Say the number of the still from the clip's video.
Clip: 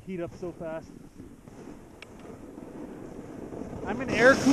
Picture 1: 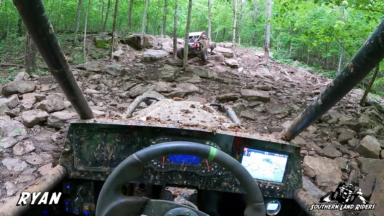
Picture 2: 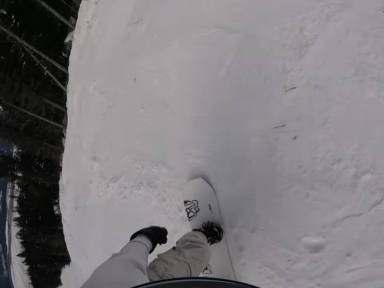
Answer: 2